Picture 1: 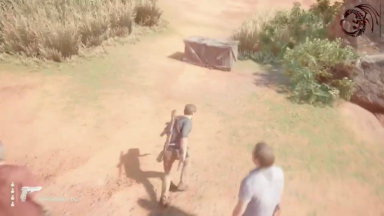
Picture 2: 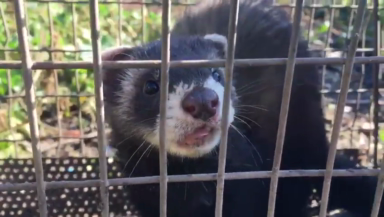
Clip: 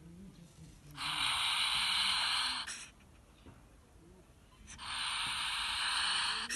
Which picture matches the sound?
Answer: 2